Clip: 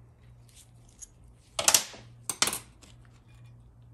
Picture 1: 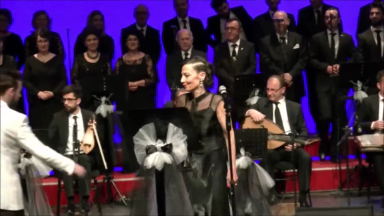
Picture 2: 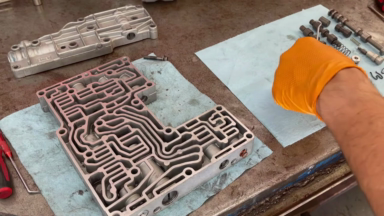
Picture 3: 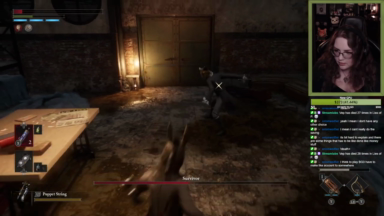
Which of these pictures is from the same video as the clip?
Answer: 2